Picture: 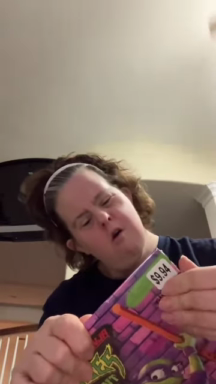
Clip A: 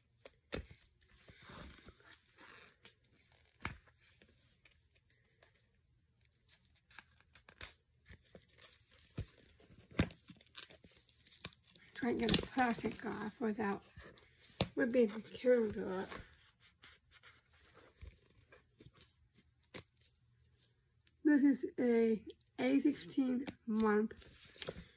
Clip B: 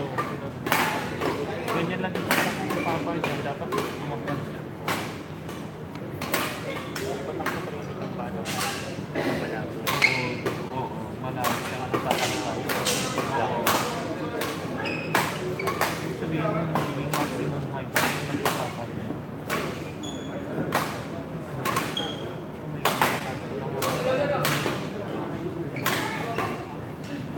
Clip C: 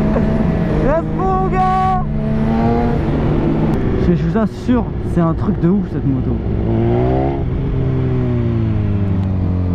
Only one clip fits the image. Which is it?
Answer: A